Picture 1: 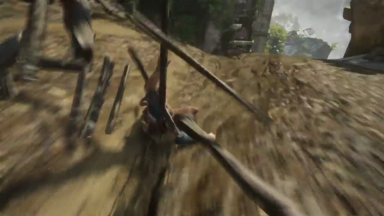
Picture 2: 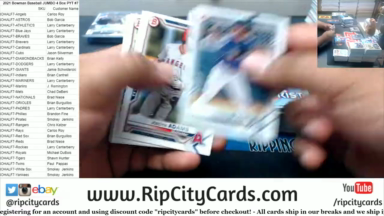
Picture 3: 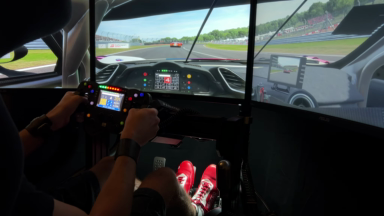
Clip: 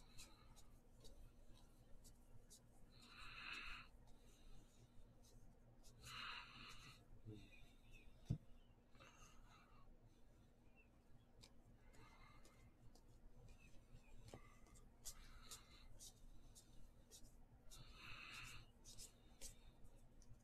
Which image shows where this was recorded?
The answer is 2